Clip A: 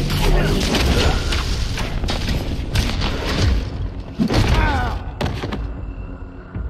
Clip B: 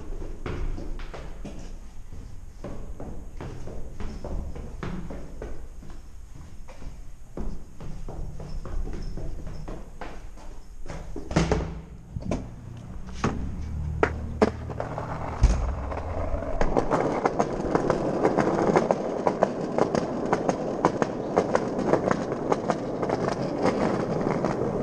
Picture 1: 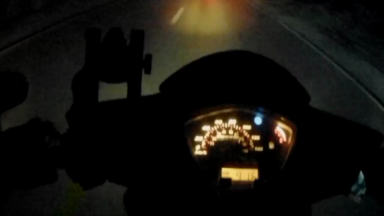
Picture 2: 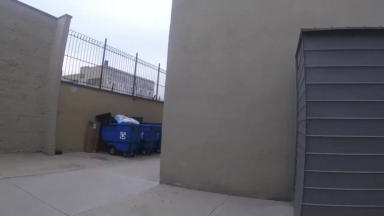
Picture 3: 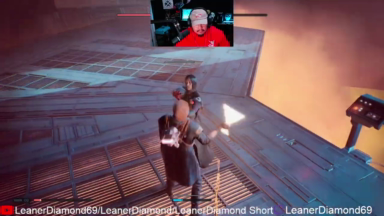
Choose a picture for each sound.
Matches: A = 3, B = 2